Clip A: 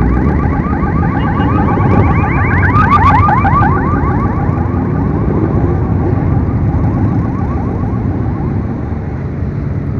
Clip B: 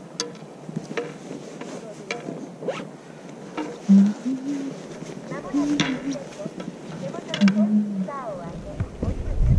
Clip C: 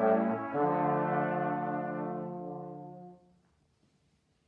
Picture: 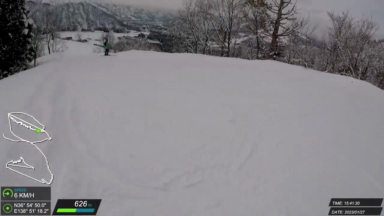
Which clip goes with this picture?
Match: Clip B